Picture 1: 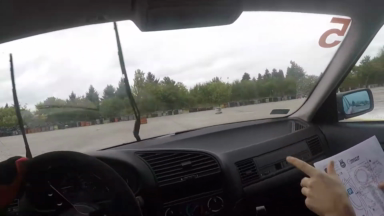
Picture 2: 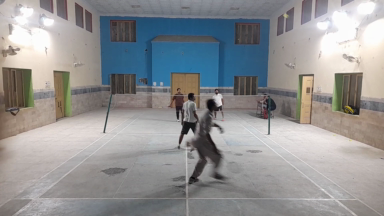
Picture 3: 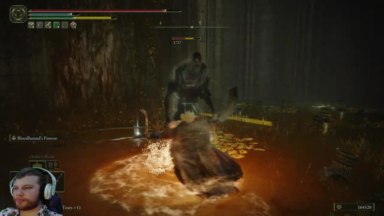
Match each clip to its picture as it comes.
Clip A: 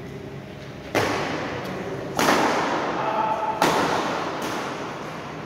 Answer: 2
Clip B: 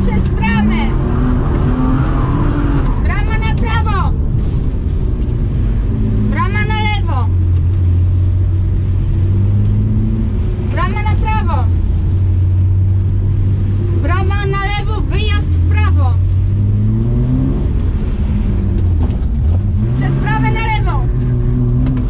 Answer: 1